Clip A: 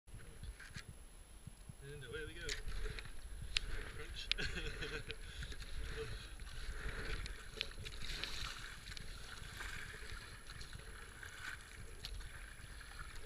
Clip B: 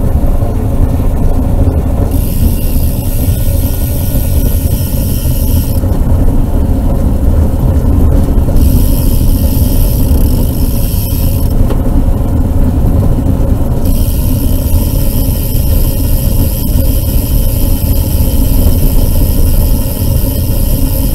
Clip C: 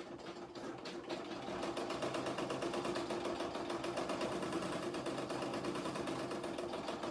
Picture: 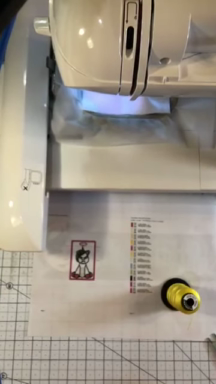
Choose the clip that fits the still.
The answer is C